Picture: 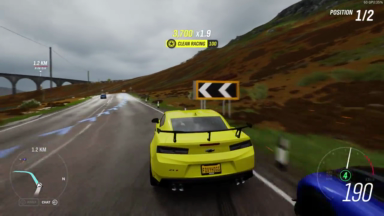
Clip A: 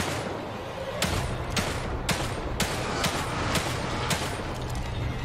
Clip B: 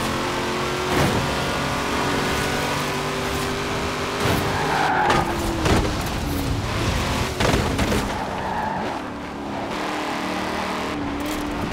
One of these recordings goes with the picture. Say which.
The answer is B